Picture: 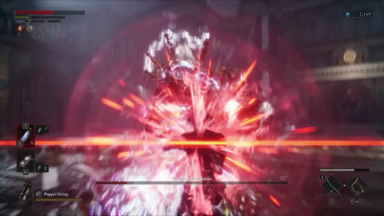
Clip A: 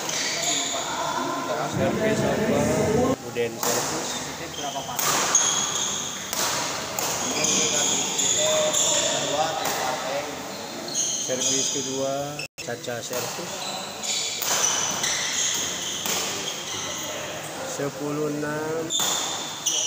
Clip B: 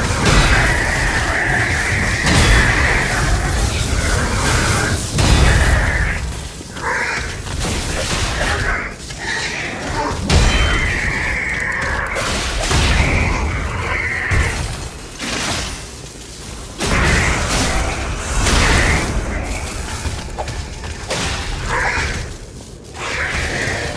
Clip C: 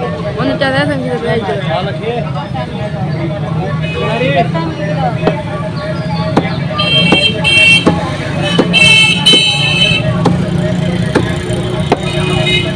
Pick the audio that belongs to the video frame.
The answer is B